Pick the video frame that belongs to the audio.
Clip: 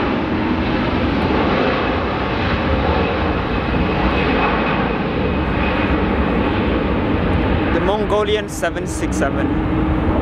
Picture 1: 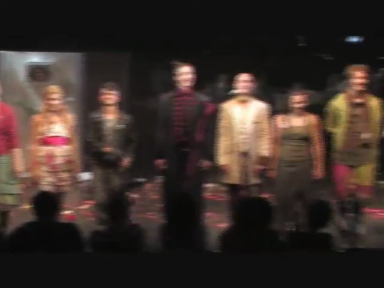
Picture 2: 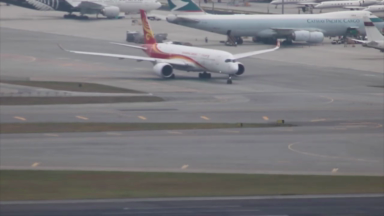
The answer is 2